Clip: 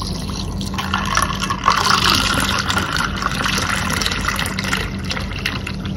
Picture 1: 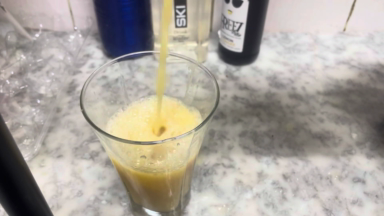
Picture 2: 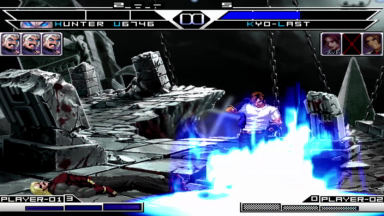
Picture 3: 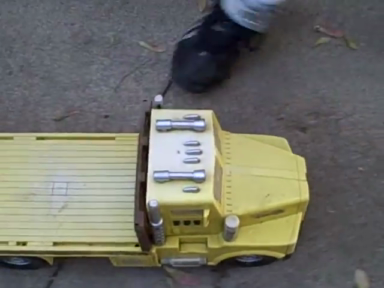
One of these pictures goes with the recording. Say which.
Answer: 1